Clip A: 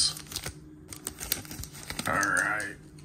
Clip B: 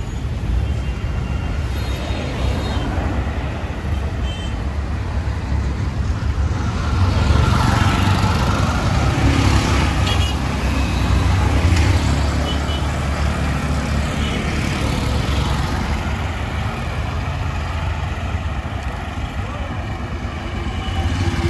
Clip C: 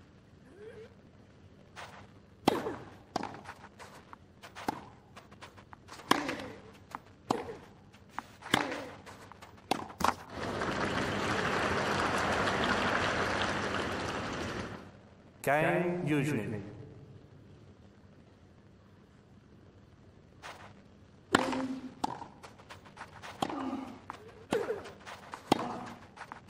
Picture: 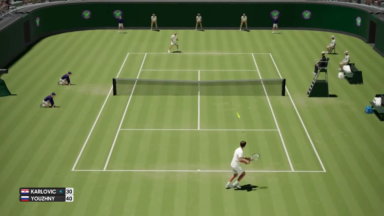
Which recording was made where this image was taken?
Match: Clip C